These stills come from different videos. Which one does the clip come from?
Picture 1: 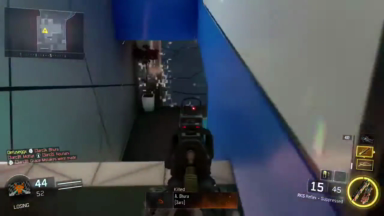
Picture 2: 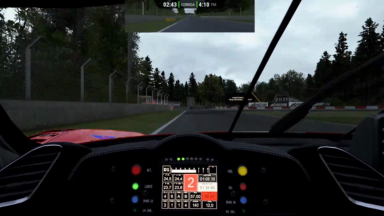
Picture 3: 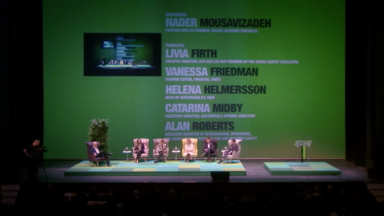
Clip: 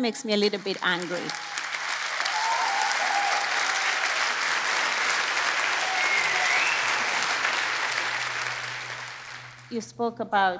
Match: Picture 3